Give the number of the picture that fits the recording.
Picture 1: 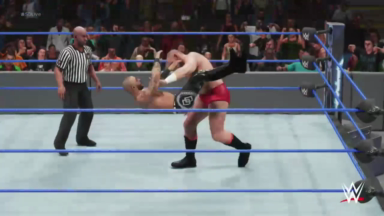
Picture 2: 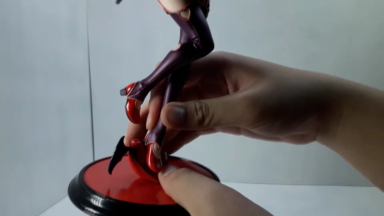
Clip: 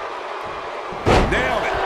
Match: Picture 1